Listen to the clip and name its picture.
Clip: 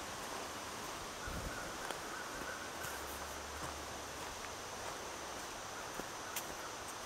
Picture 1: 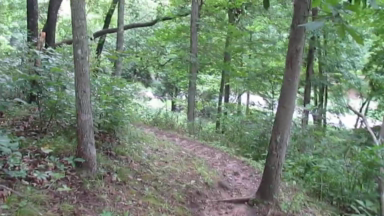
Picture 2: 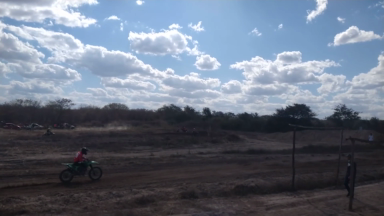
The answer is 1